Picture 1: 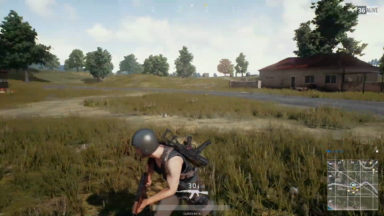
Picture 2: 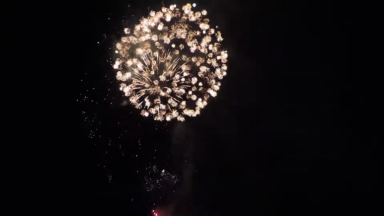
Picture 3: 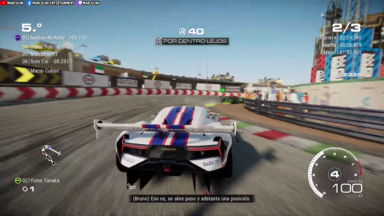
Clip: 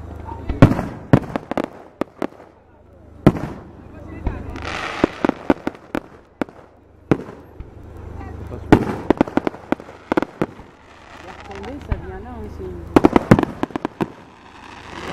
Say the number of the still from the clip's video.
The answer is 2